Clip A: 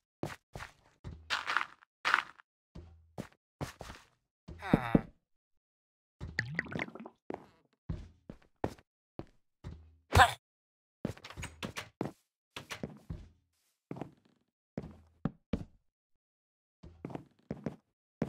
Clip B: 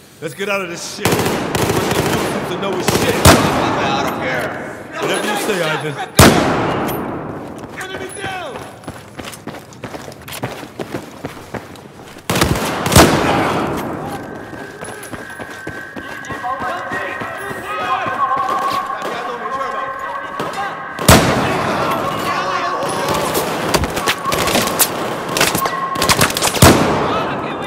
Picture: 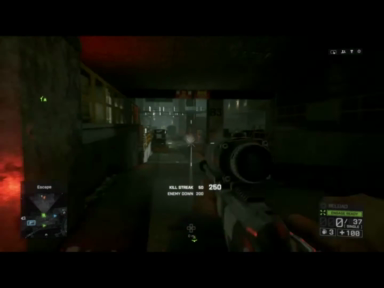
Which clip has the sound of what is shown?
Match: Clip B